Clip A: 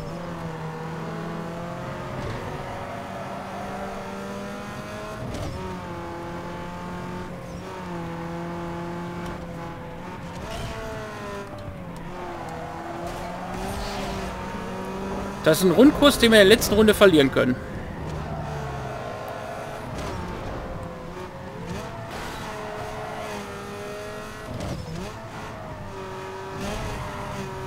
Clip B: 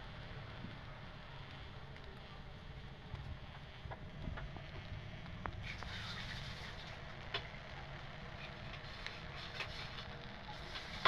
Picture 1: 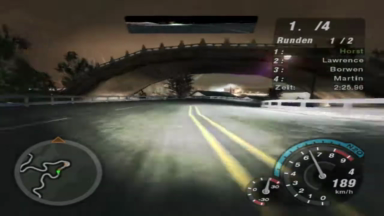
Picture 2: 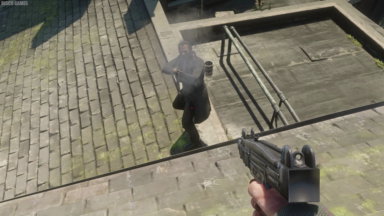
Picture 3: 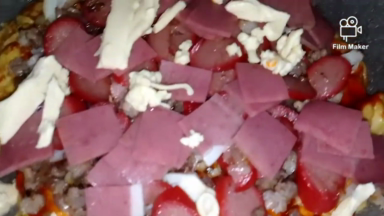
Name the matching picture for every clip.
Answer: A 1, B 3